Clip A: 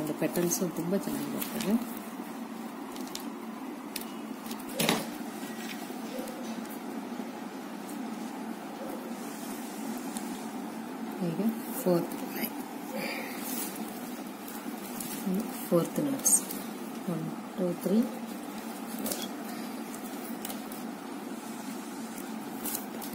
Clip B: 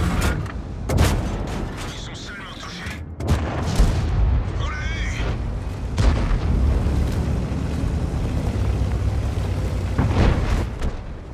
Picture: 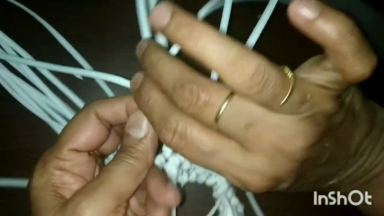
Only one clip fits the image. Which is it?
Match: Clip A